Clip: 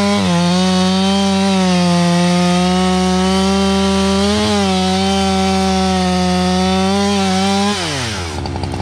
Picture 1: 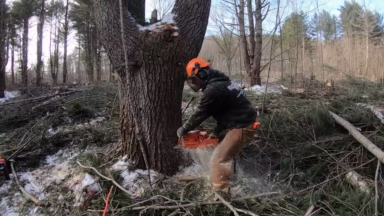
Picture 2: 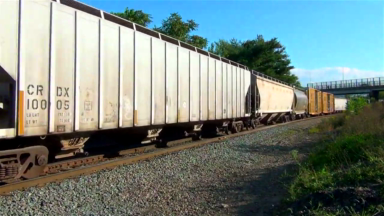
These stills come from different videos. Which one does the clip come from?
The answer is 1